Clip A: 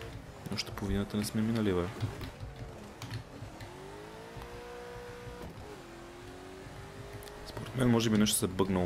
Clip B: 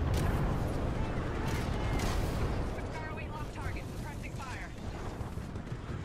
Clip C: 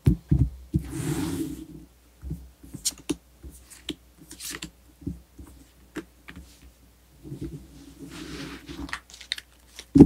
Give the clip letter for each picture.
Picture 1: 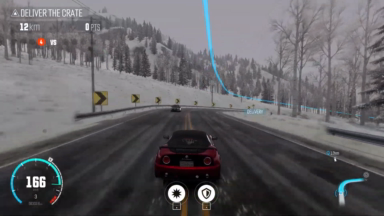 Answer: A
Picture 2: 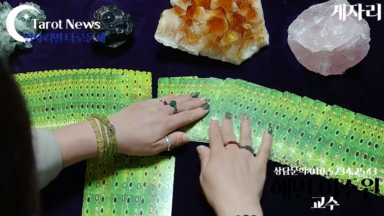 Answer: C